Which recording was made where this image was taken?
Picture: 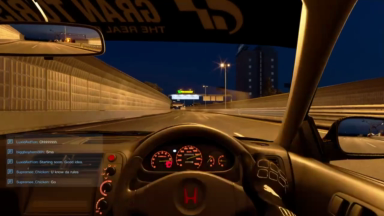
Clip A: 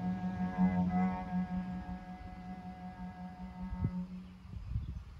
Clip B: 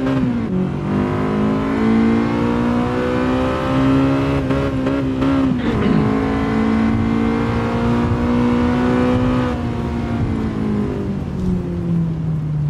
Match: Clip B